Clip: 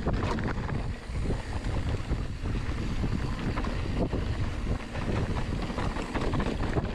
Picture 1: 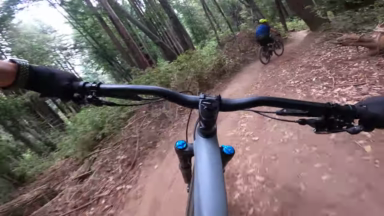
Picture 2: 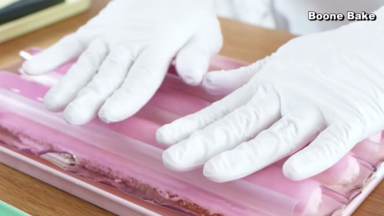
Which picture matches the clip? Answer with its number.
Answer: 1